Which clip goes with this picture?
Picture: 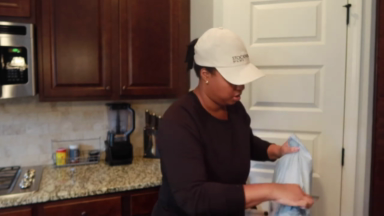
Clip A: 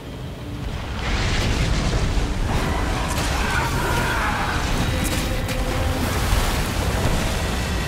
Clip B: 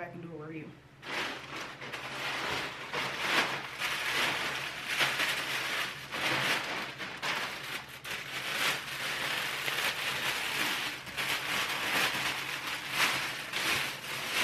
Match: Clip B